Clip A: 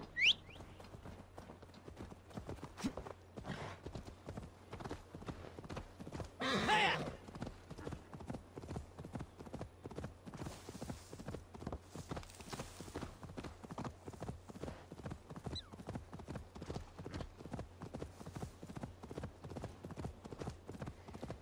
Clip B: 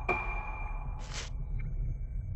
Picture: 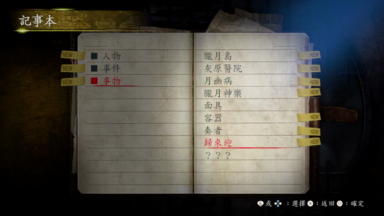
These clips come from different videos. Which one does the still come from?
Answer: B